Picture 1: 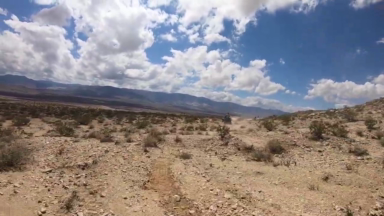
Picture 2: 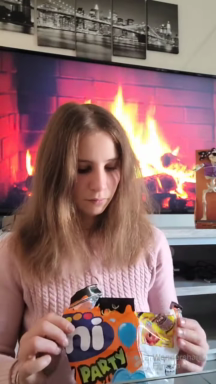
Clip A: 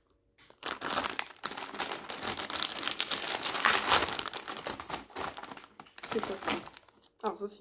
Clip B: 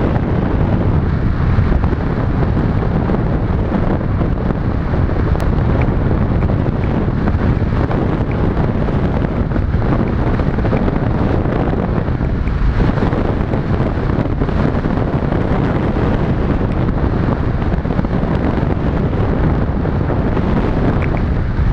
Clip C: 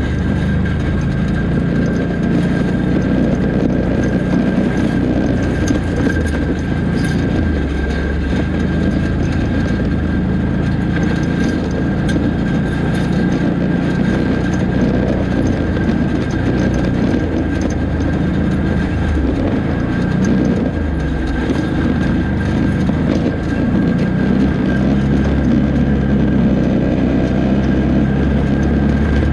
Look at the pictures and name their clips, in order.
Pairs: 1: C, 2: A